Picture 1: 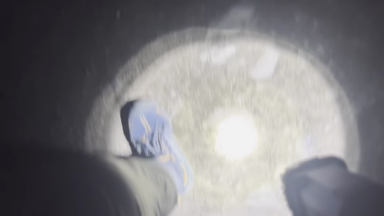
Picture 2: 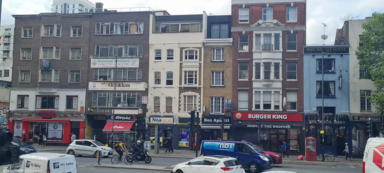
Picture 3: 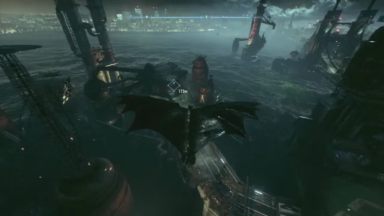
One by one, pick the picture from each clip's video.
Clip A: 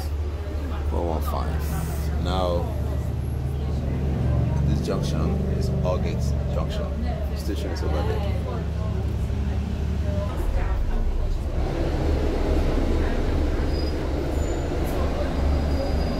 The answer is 2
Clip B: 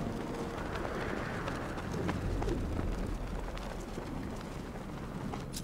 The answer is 3